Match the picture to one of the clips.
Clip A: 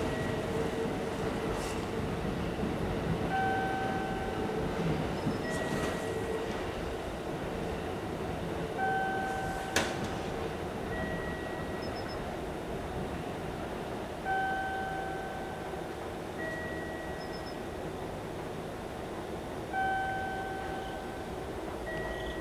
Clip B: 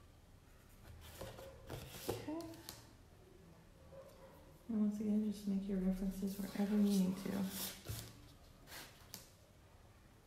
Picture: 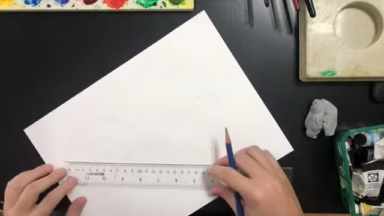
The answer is B